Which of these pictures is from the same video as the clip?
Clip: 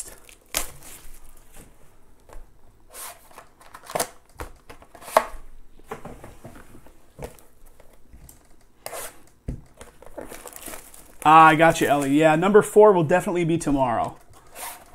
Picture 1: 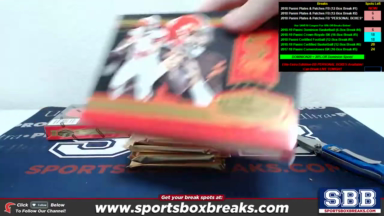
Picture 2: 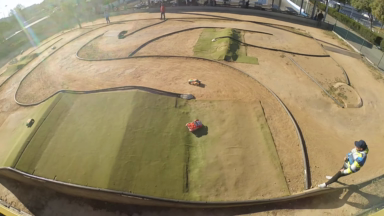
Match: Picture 1